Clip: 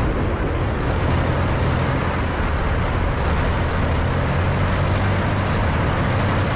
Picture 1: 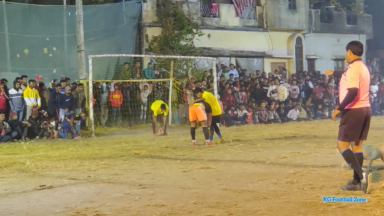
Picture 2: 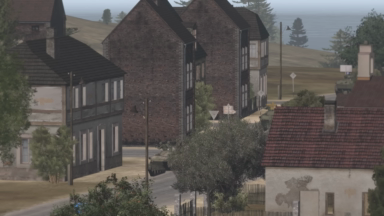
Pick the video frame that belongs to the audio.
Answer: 2